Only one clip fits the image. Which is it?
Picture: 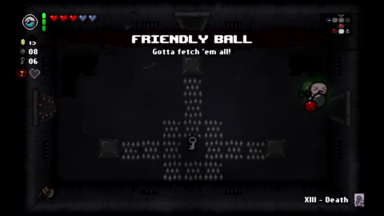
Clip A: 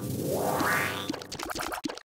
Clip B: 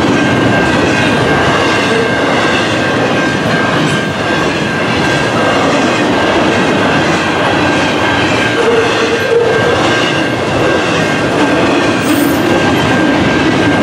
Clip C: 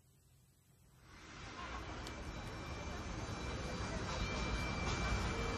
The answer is A